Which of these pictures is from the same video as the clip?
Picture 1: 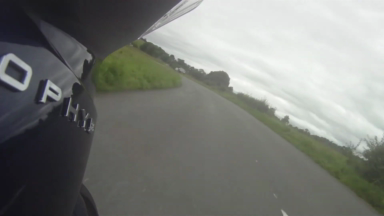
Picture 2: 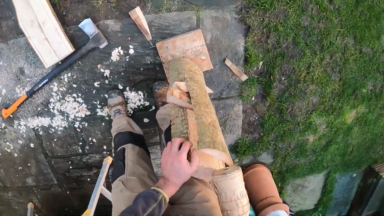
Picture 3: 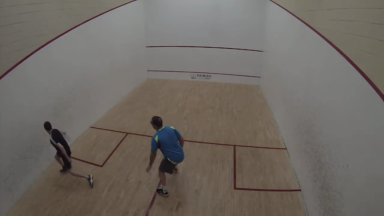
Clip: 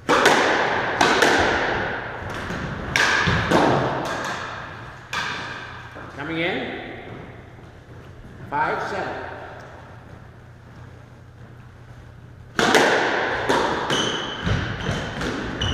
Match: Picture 3